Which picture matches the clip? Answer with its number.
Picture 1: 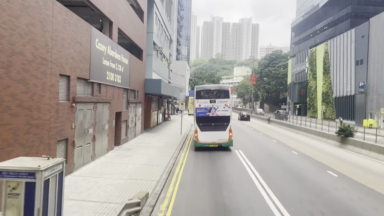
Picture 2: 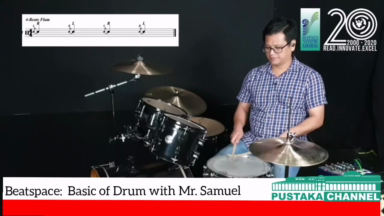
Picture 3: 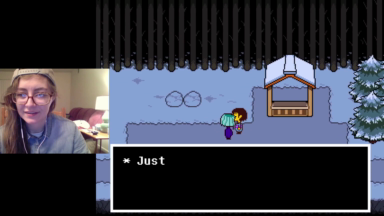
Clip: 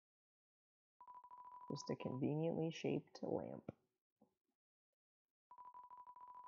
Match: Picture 3